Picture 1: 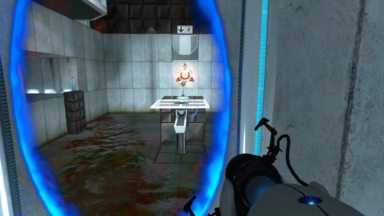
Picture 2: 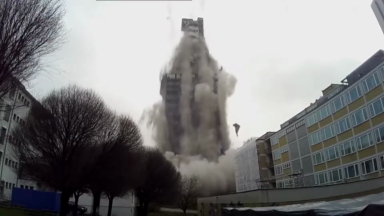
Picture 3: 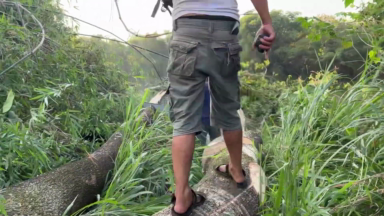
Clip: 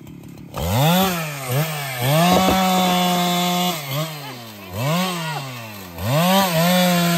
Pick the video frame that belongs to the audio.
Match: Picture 3